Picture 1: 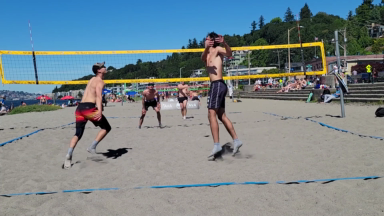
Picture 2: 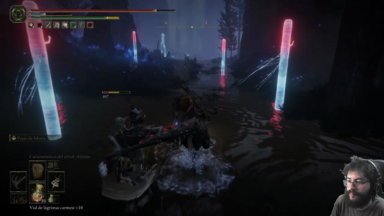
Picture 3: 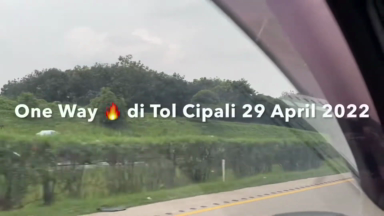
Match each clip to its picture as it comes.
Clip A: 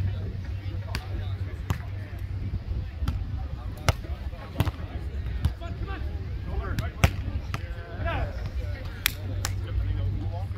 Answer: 1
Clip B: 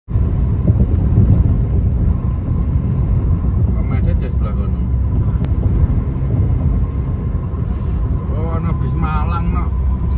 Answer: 3